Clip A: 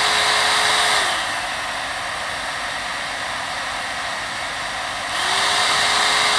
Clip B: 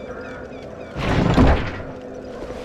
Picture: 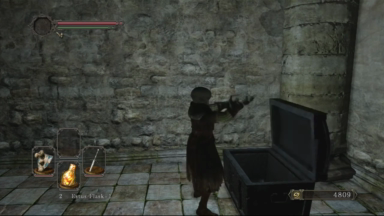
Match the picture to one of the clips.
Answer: B